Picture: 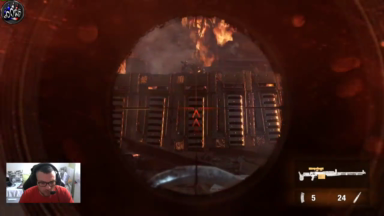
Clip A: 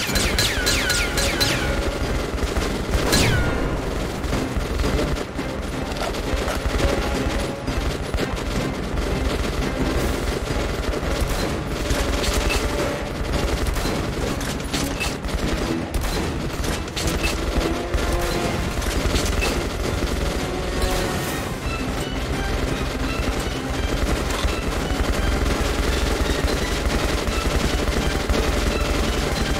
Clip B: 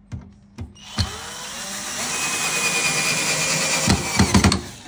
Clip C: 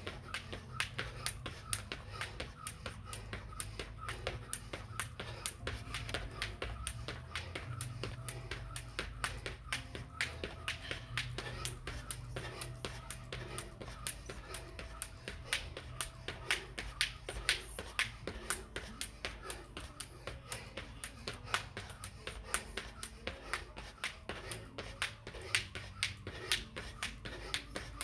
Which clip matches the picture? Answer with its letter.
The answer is A